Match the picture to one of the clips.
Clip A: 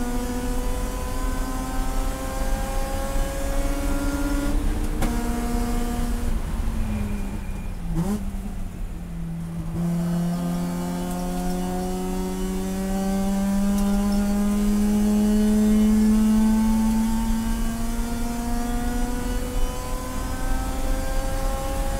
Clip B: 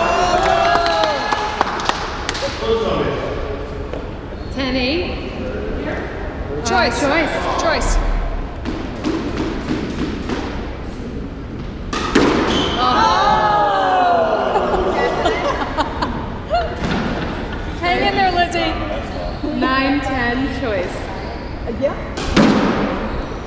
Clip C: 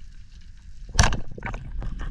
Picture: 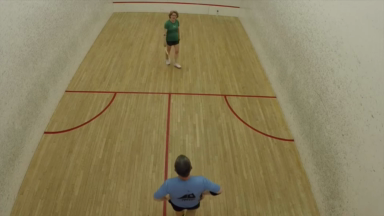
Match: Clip B